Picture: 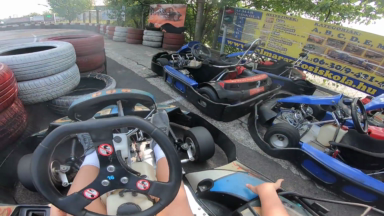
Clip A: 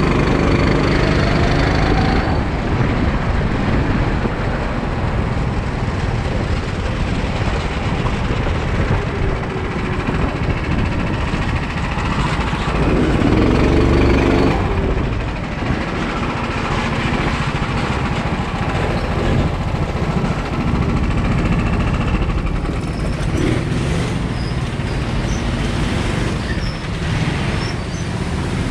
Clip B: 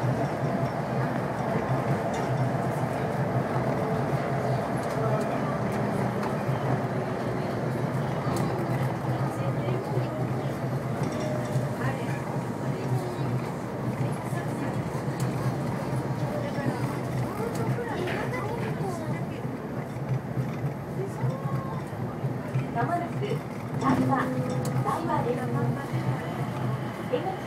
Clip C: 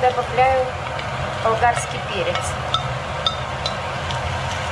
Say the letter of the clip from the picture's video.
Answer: A